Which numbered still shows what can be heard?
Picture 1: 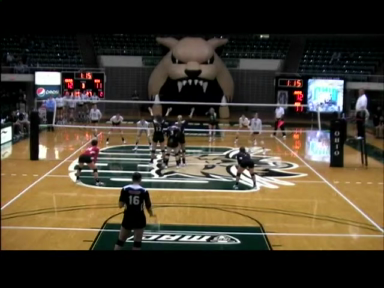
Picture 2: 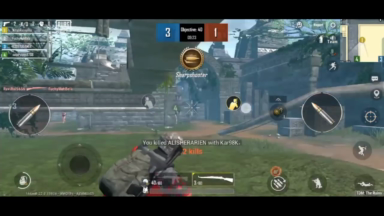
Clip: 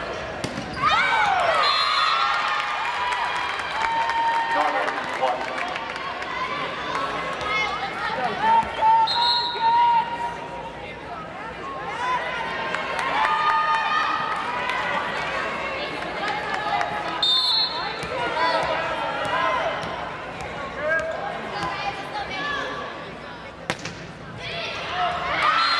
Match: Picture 1